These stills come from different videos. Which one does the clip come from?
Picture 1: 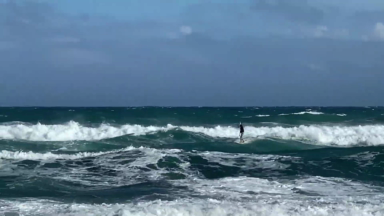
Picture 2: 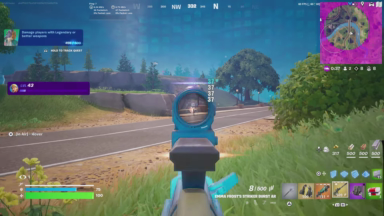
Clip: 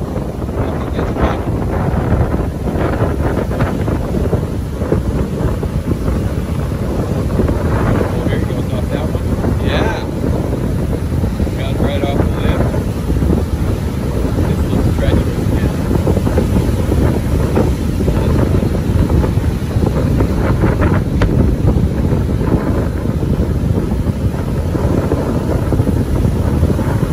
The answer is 1